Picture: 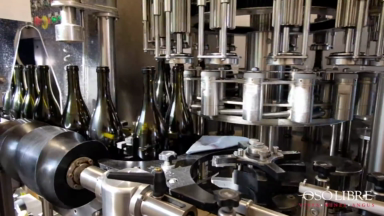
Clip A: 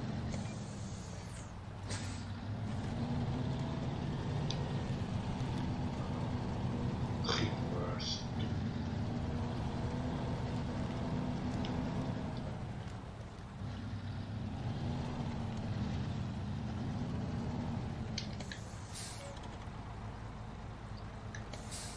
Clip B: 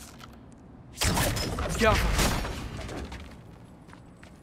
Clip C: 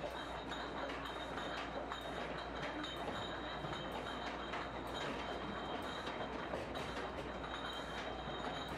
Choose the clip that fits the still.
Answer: C